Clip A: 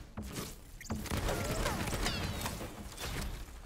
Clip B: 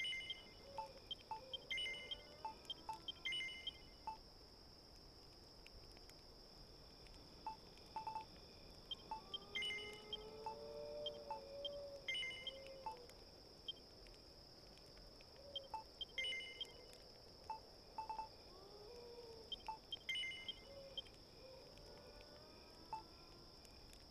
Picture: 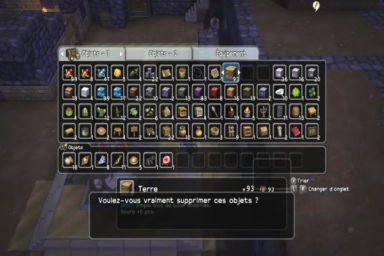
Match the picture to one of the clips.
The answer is B